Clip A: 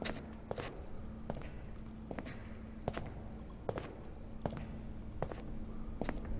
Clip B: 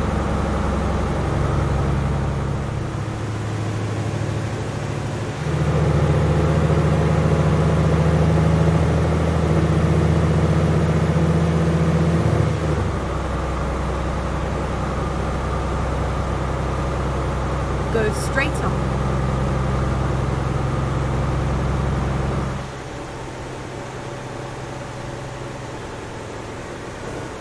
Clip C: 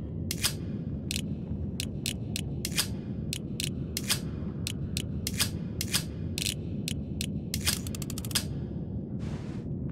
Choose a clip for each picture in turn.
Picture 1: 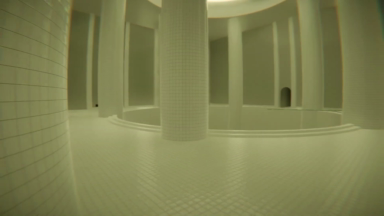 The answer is A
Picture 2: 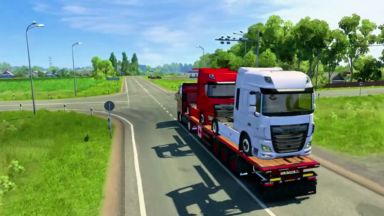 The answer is B